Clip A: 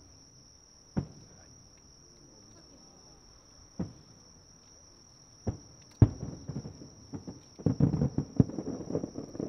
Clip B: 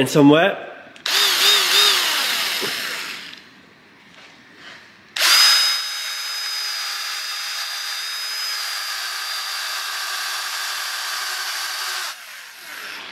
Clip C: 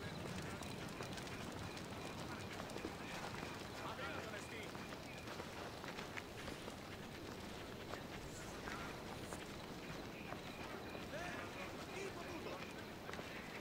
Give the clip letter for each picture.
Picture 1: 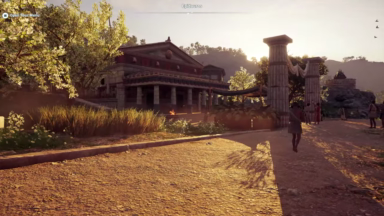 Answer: C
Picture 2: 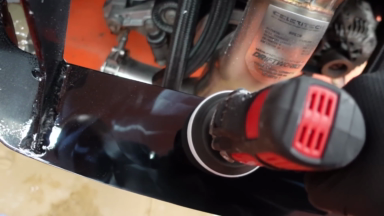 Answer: B